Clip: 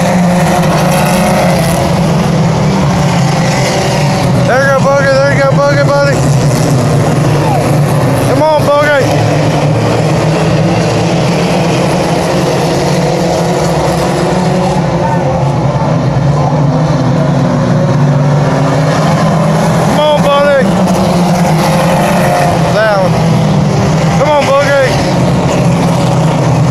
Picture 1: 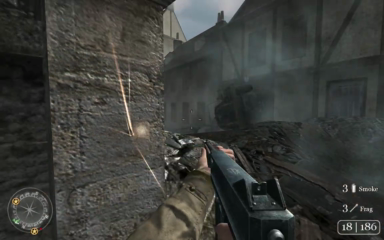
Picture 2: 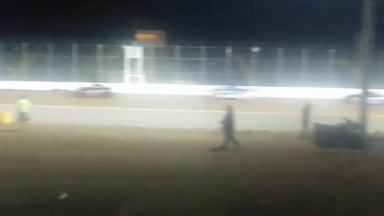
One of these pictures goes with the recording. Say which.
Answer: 2